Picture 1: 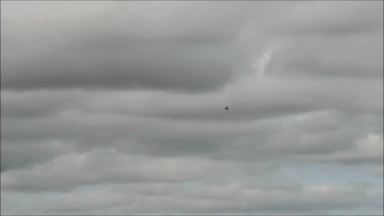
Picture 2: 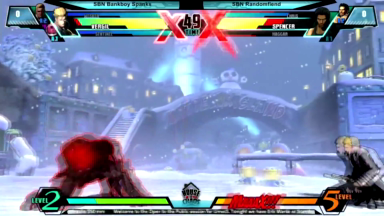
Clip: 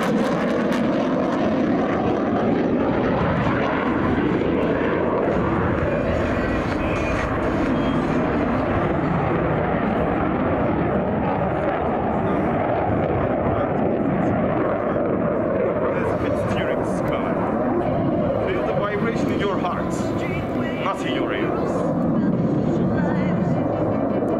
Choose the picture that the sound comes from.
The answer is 1